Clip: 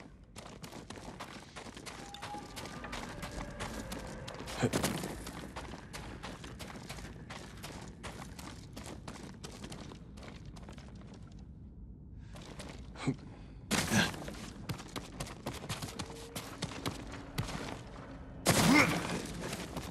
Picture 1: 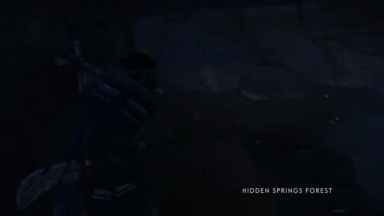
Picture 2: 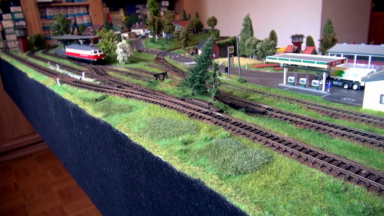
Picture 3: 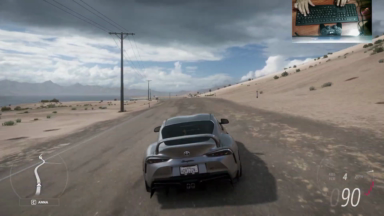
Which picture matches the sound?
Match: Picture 1